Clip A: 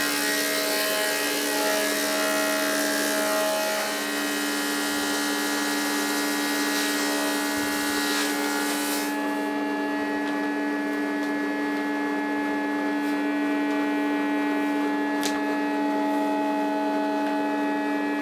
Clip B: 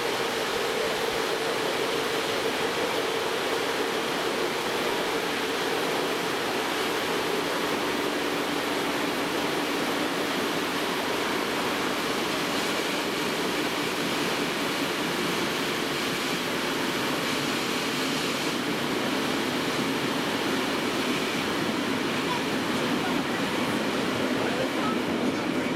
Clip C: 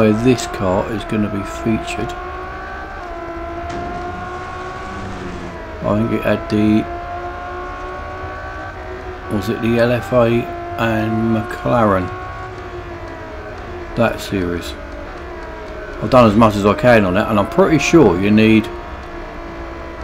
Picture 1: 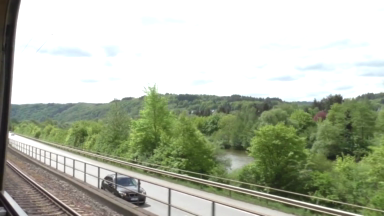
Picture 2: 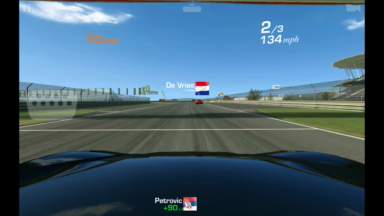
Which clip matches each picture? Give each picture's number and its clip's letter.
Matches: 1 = B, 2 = C